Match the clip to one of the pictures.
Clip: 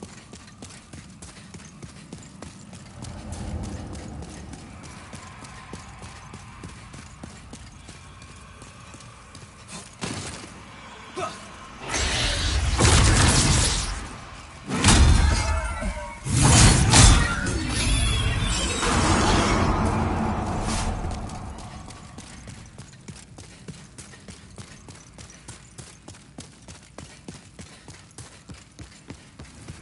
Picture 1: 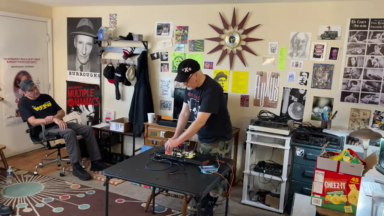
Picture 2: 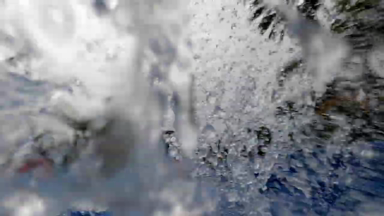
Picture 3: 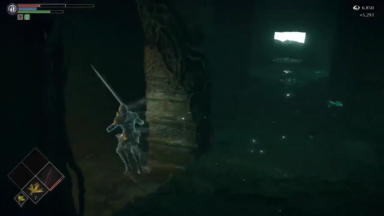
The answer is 3